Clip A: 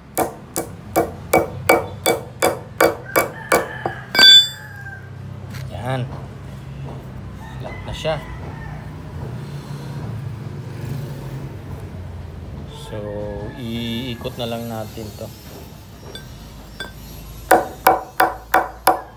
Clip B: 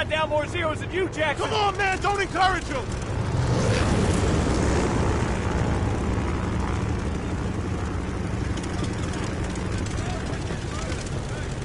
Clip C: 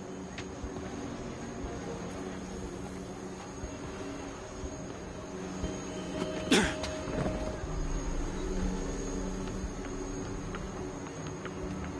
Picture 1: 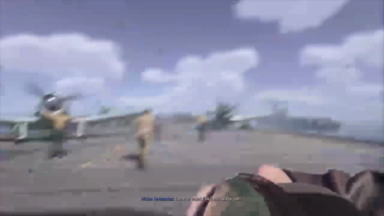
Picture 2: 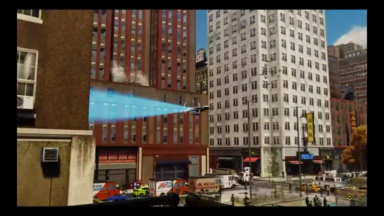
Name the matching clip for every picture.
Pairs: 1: B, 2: C